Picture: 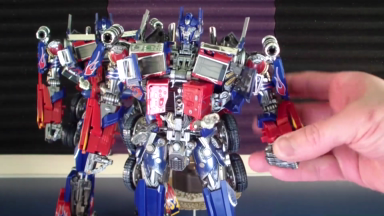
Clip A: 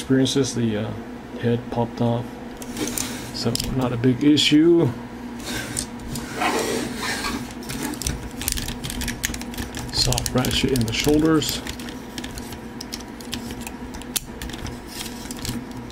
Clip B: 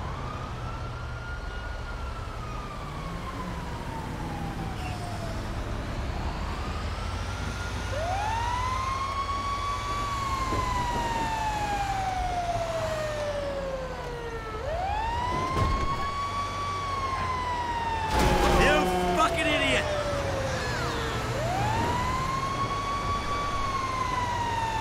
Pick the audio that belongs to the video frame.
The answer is A